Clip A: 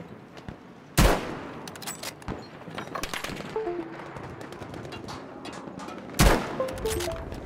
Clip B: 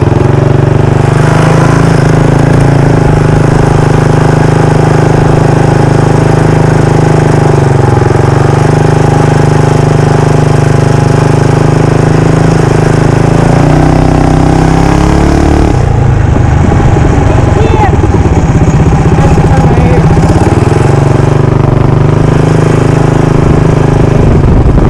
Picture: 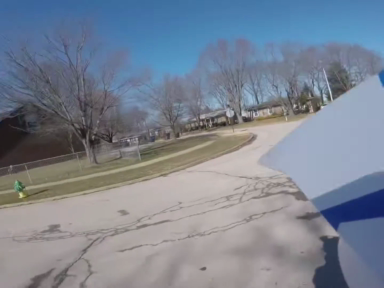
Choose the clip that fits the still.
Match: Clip B